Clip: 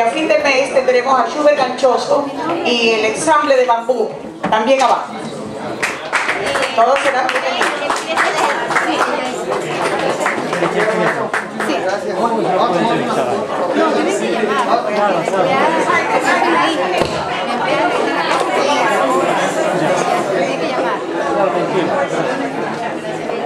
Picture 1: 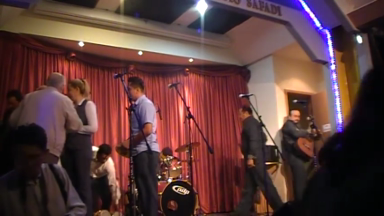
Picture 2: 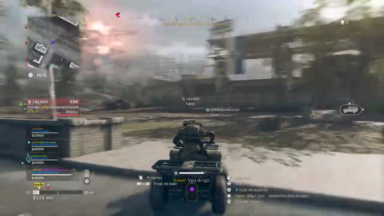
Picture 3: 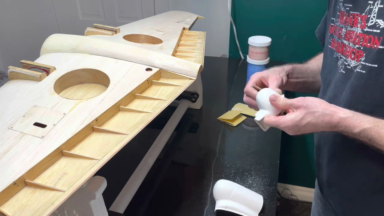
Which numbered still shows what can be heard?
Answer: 1